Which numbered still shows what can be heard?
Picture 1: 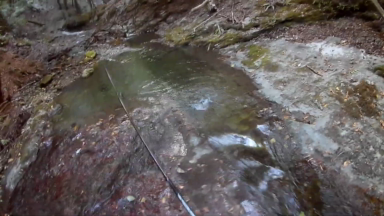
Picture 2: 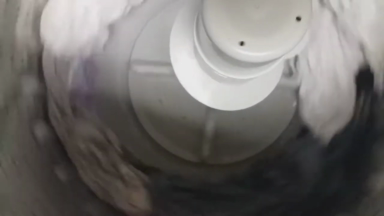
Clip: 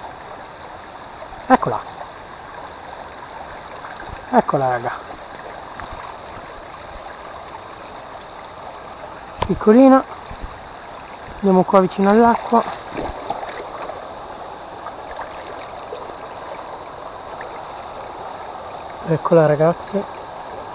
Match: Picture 1